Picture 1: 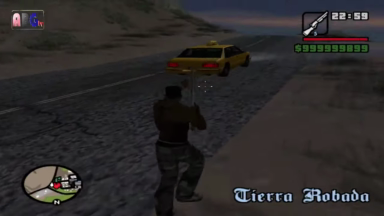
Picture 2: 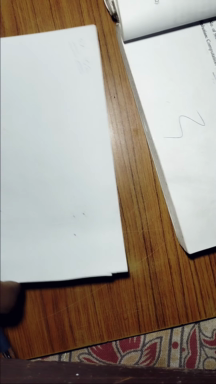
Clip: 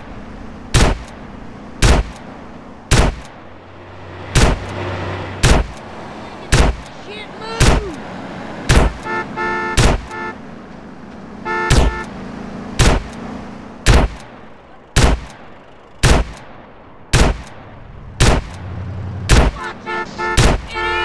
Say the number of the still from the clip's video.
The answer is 1